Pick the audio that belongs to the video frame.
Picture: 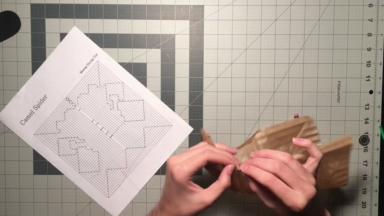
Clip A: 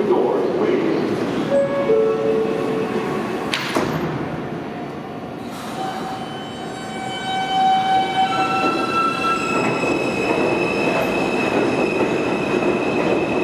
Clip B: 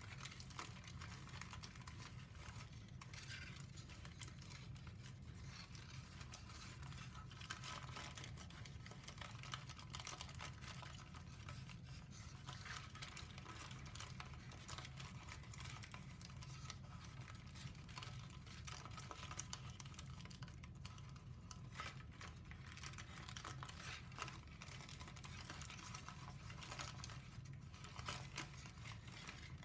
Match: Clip B